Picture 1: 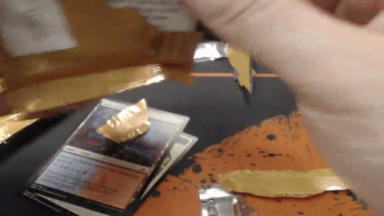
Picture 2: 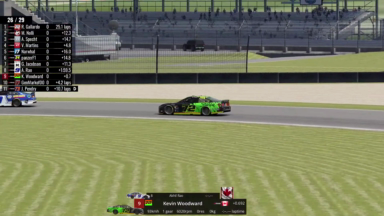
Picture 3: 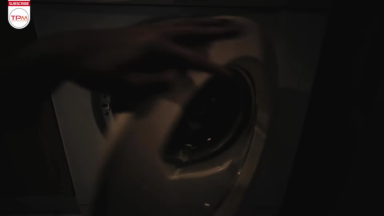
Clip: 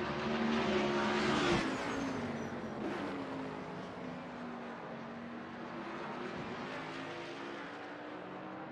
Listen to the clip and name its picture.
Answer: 2